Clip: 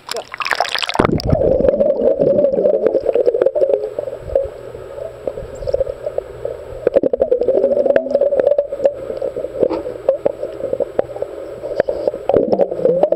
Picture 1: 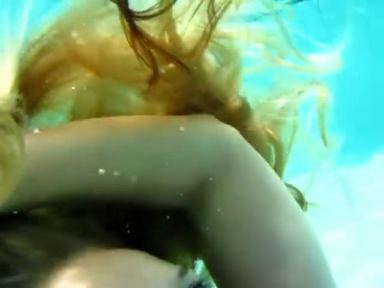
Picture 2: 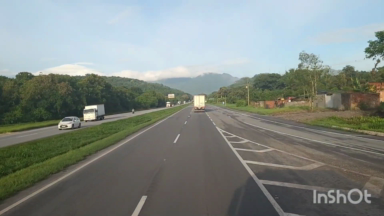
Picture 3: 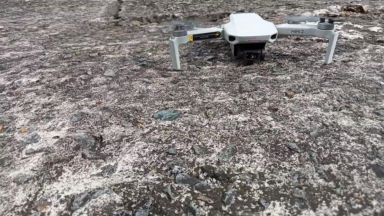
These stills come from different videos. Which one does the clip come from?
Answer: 1